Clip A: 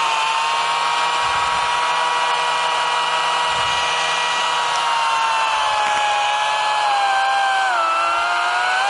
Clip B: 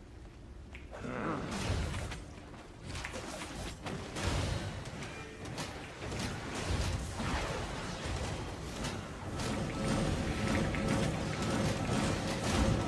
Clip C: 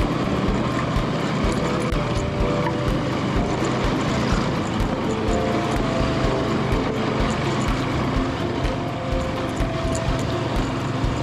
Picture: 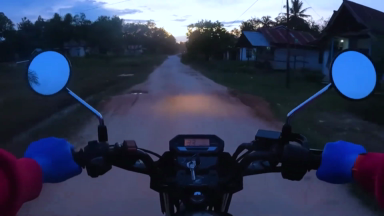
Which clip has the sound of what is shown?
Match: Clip C